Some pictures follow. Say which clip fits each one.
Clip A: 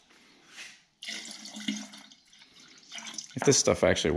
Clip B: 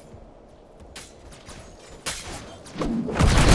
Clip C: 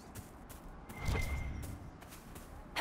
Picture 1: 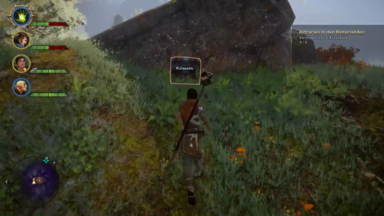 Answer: C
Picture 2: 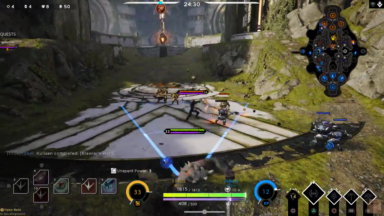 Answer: B